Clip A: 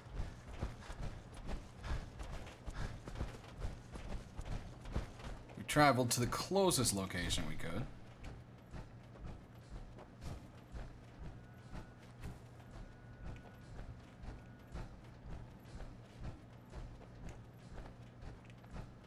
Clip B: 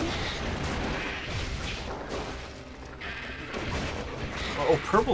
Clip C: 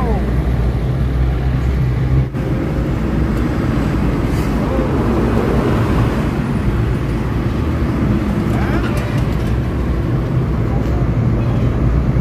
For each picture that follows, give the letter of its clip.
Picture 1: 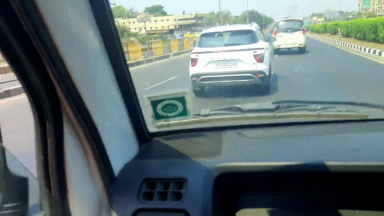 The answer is C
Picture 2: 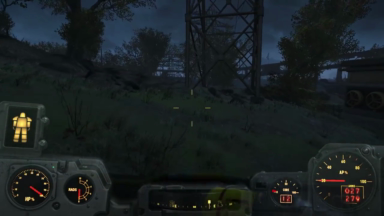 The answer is A